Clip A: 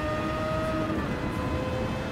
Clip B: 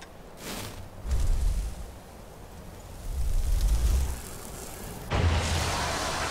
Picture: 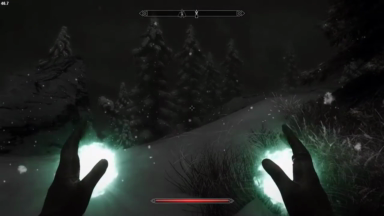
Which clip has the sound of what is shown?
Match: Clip B